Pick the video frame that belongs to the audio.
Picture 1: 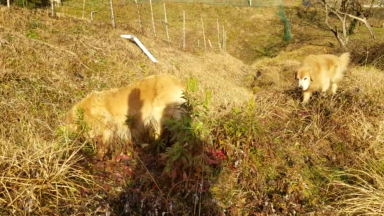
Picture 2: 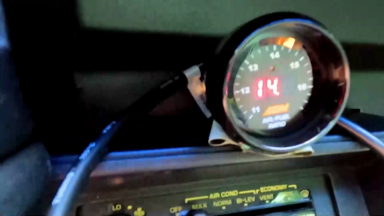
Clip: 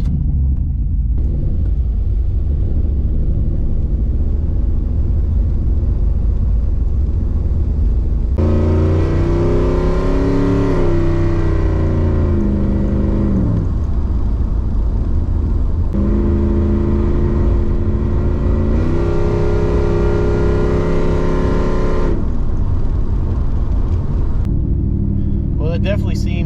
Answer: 2